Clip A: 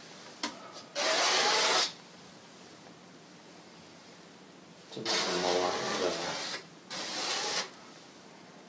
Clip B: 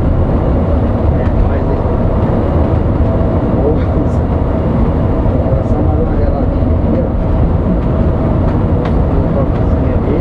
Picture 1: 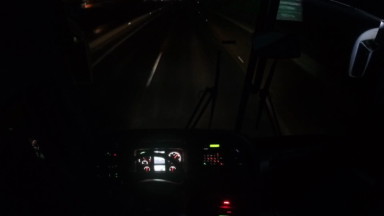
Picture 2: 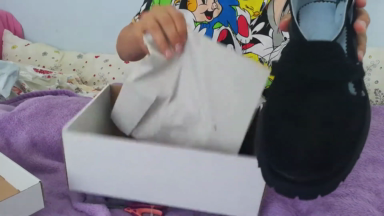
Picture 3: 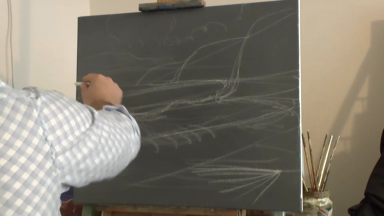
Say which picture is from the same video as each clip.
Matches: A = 3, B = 1